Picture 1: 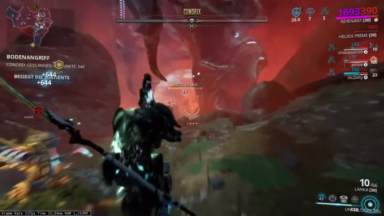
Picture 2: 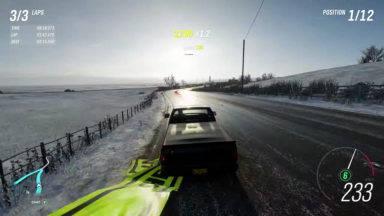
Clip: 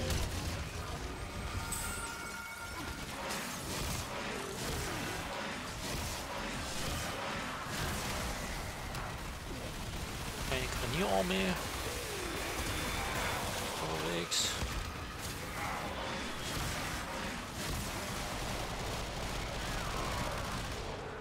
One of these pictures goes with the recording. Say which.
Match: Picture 1